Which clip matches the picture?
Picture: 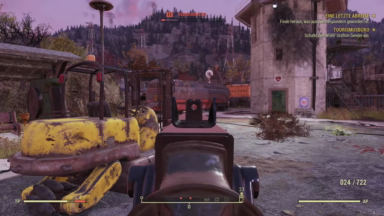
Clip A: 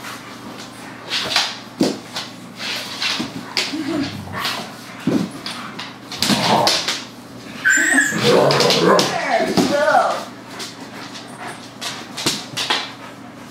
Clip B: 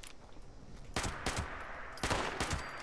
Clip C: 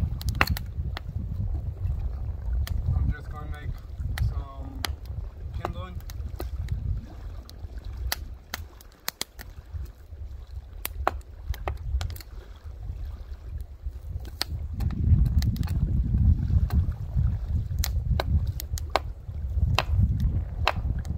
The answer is B